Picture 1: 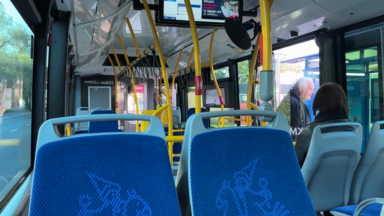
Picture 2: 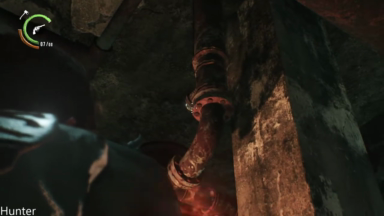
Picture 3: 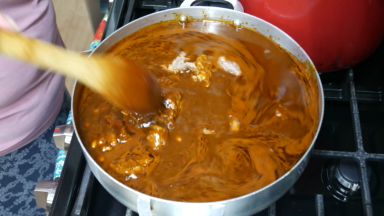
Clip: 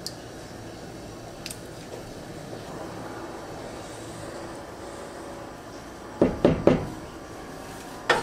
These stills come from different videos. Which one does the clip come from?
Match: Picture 3